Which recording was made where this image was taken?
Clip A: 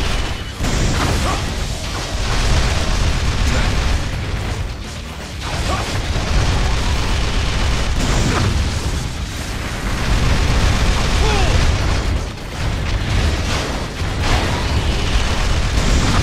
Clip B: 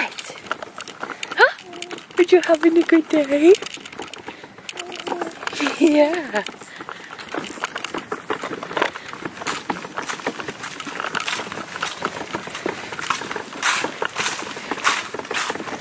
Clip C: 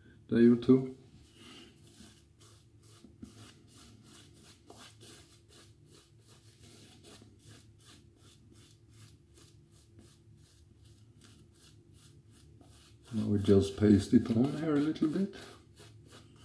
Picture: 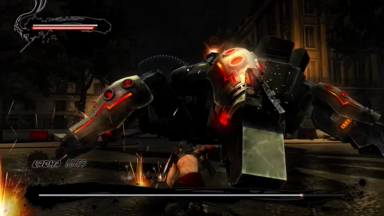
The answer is A